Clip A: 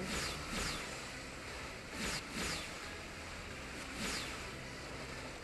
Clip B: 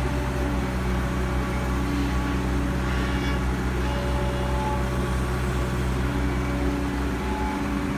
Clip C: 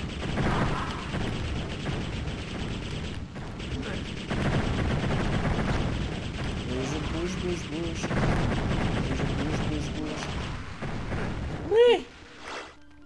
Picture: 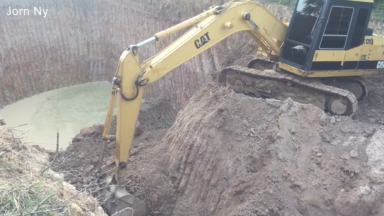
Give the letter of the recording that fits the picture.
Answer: B